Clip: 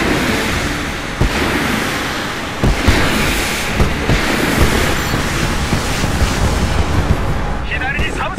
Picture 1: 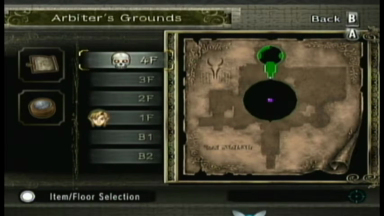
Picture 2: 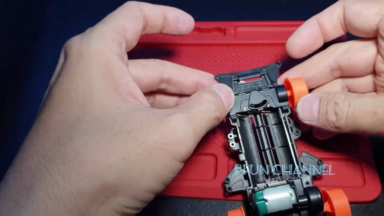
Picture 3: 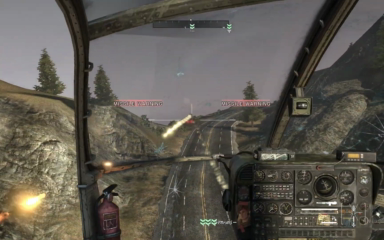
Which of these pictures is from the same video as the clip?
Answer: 3